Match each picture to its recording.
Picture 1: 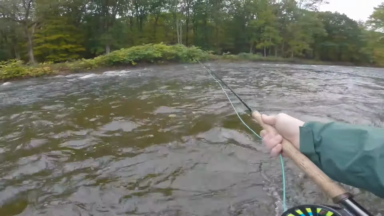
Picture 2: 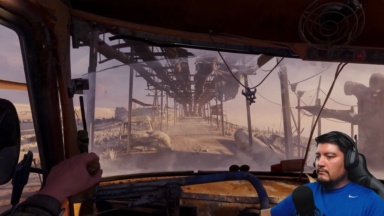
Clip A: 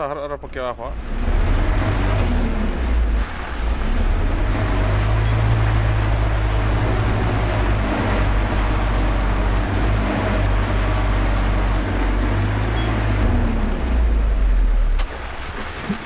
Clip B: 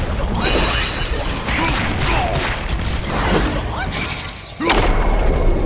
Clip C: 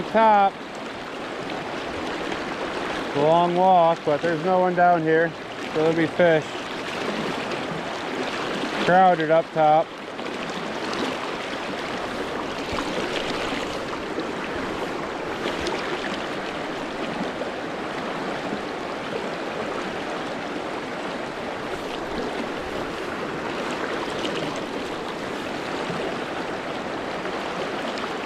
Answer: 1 C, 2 A